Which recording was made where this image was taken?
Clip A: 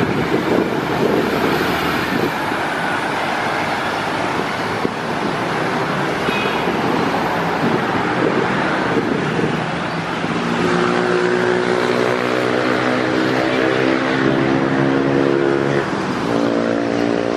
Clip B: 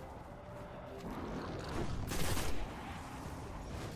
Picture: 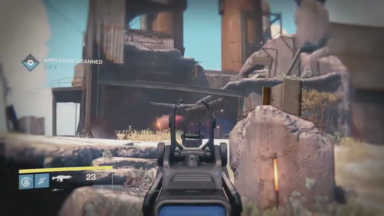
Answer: B